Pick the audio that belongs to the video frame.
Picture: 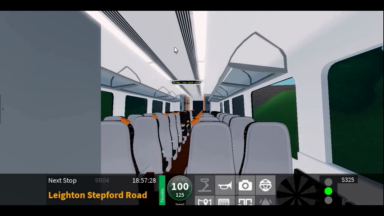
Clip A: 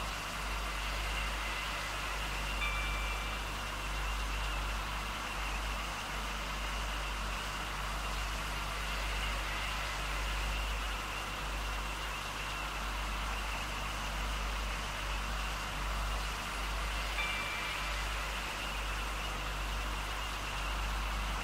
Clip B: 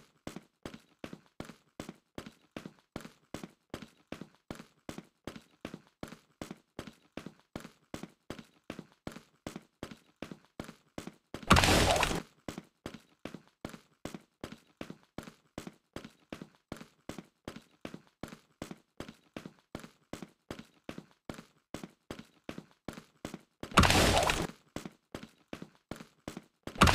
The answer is A